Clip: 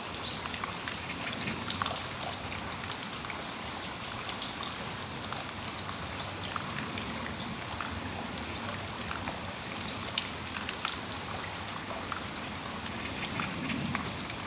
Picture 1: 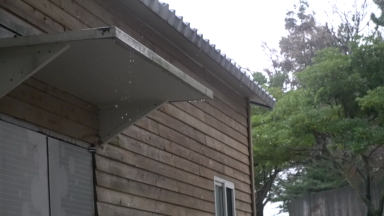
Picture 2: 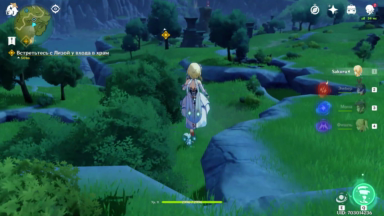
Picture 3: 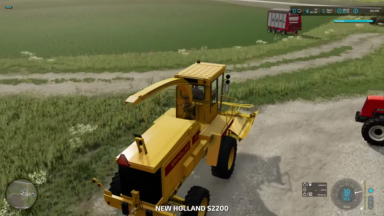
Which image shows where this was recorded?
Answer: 1